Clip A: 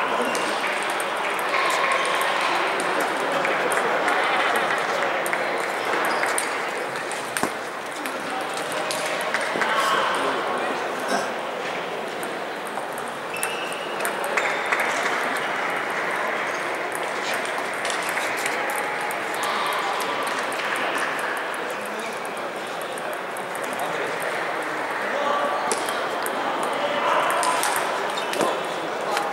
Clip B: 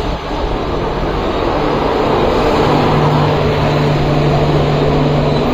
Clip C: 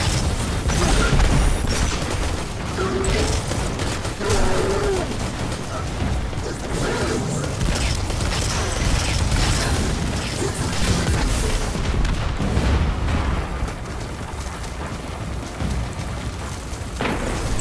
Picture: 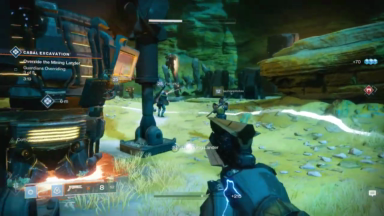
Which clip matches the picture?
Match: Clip C